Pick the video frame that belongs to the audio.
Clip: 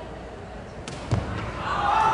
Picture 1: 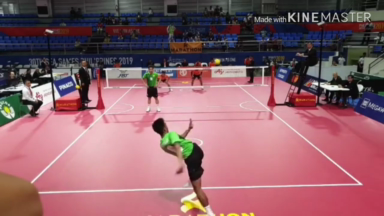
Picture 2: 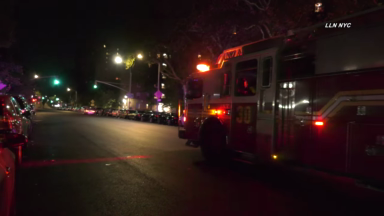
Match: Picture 1